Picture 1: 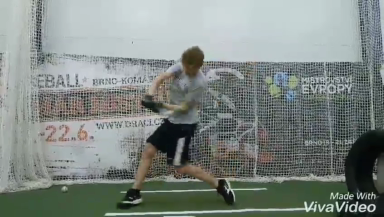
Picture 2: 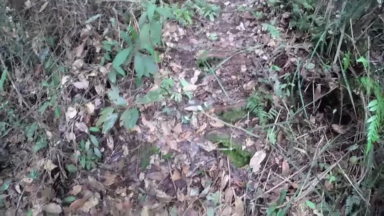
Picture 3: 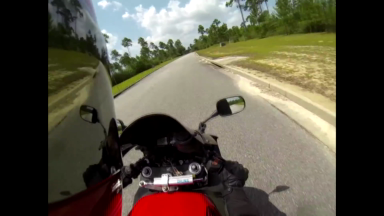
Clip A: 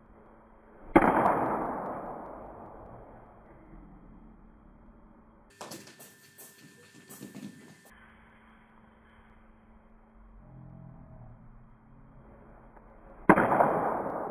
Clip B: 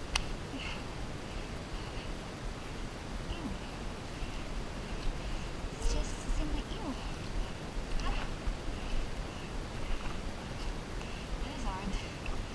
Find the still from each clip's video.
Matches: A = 1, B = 2